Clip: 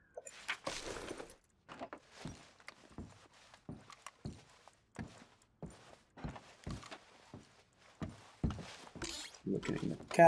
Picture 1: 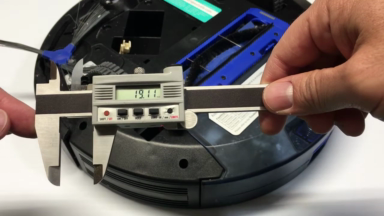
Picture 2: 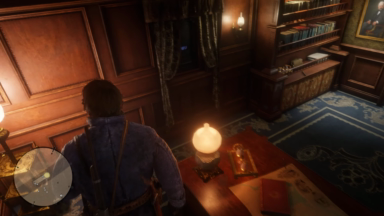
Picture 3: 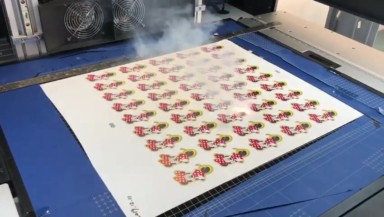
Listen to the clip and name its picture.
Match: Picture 2